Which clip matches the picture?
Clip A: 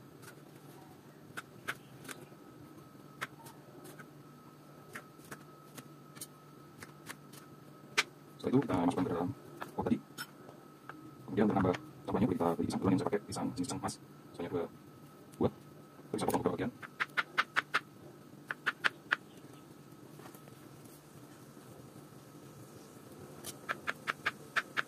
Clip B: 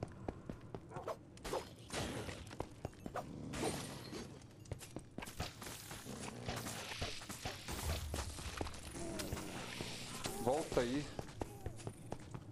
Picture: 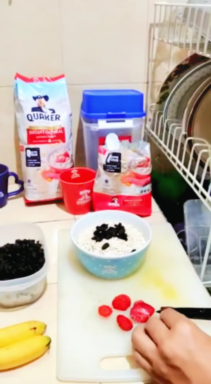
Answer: A